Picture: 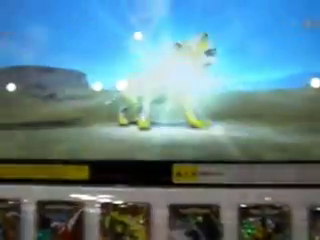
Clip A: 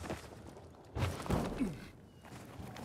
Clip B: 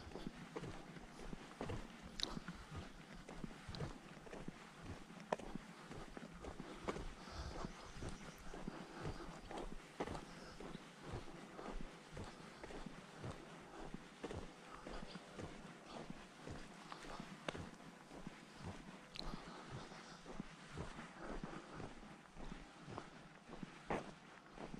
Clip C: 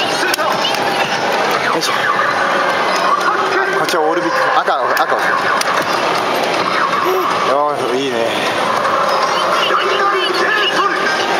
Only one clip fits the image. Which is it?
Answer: C